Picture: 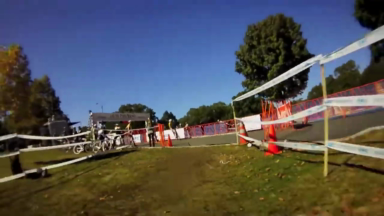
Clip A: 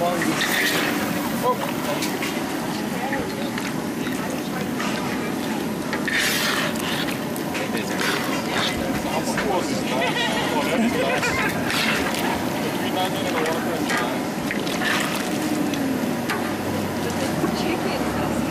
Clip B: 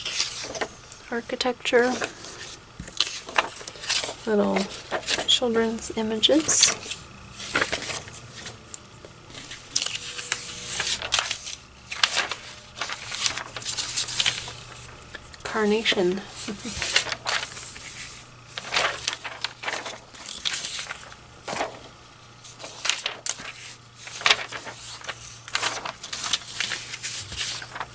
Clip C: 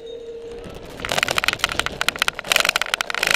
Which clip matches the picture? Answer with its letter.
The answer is C